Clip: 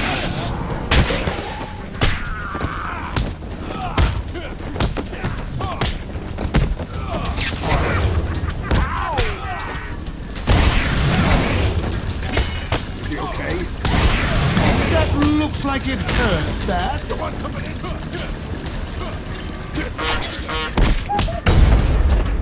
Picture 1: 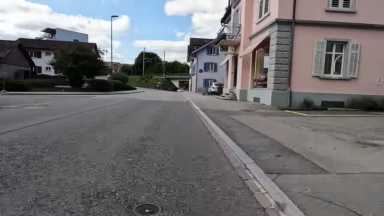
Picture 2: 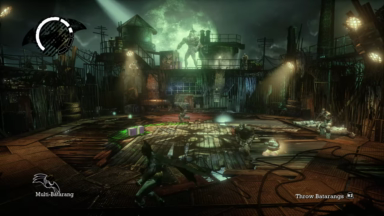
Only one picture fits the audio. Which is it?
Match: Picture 2